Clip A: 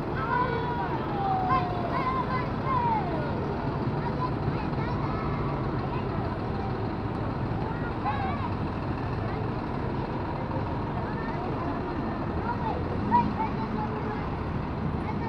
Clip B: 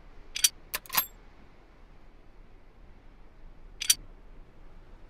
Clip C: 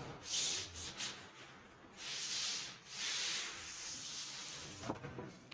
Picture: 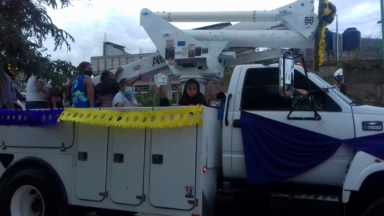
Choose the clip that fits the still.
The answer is A